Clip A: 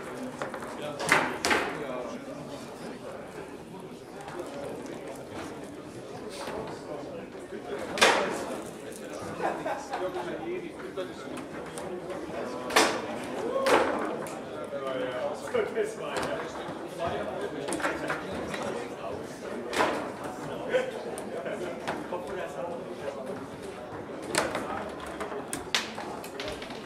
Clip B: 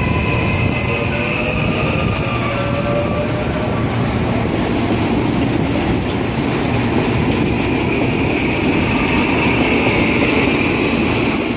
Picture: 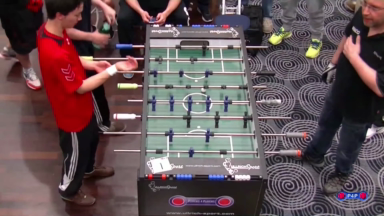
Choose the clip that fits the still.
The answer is A